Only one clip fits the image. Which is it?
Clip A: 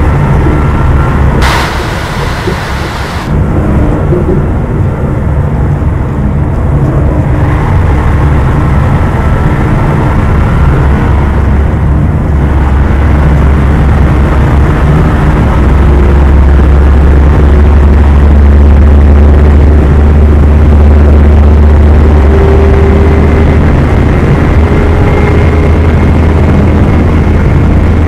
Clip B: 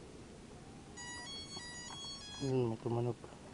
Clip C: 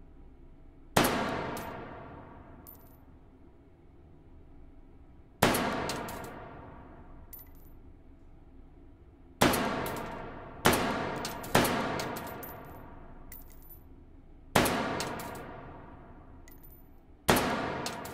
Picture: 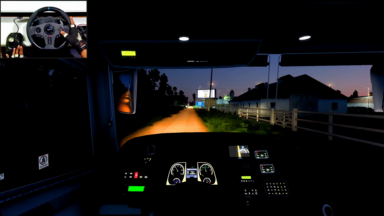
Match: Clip A